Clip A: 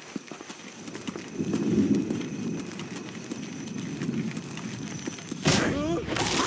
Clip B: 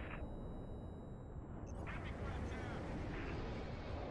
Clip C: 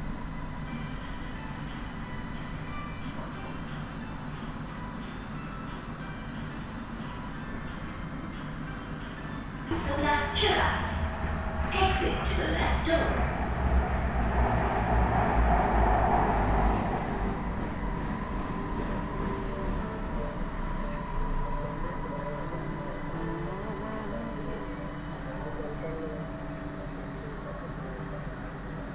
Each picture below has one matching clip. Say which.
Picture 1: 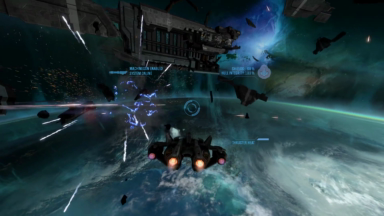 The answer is B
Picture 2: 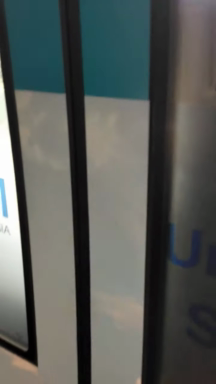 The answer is C